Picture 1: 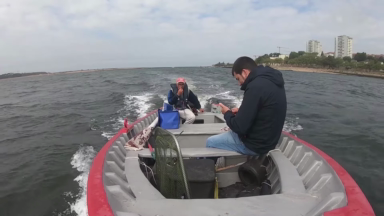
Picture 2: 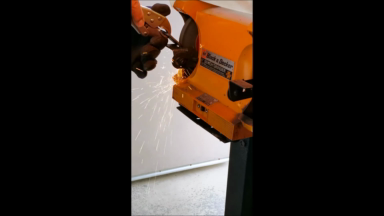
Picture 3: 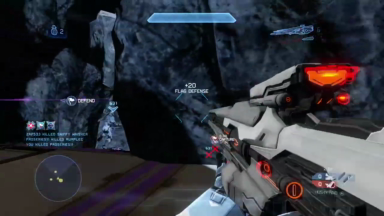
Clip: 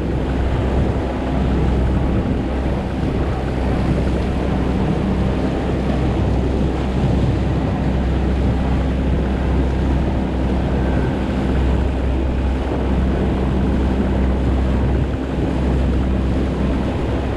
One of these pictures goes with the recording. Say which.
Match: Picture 1